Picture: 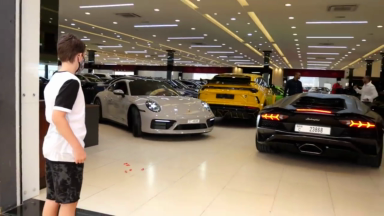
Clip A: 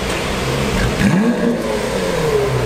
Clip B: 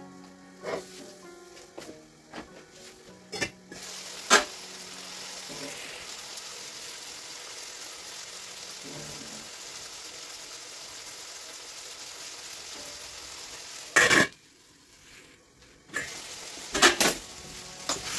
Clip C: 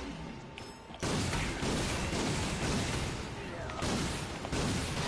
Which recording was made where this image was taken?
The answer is A